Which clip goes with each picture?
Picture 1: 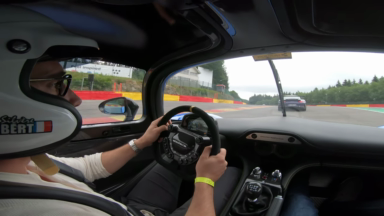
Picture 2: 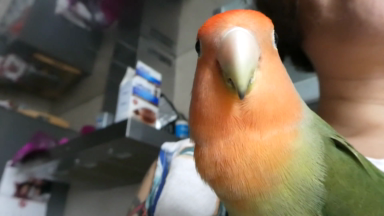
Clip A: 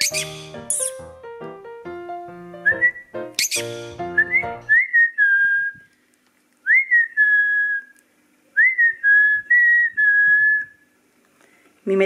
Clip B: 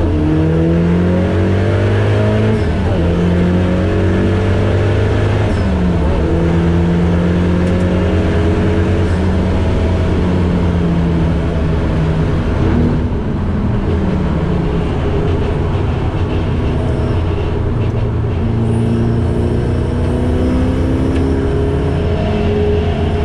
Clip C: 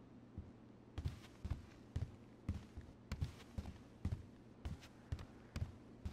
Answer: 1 B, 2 A